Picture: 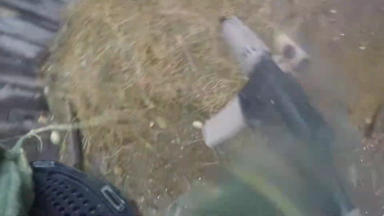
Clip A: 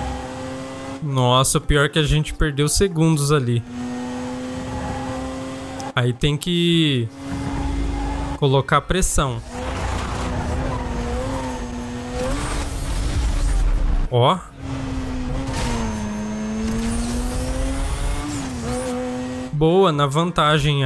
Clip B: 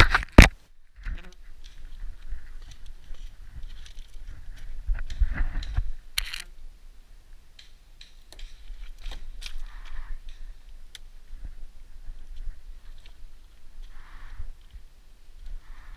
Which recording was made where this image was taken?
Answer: B